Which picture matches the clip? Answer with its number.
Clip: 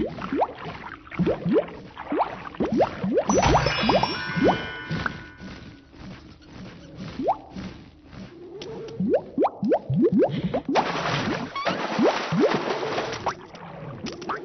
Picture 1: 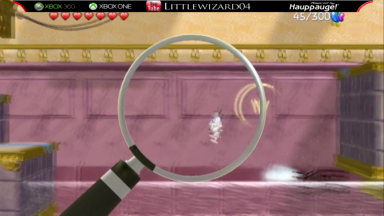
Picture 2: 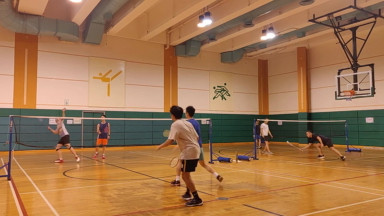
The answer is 1